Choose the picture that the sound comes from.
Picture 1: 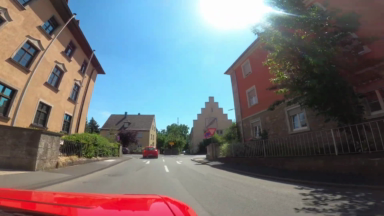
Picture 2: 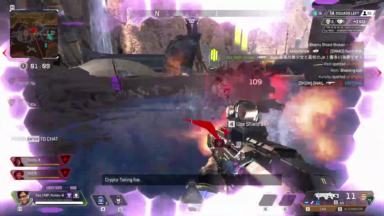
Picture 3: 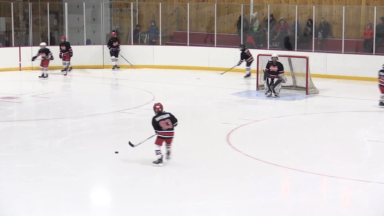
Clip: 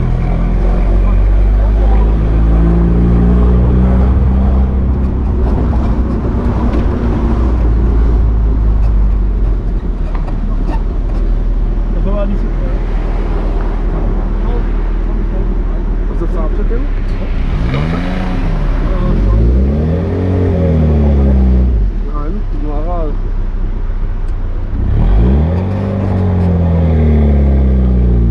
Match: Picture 1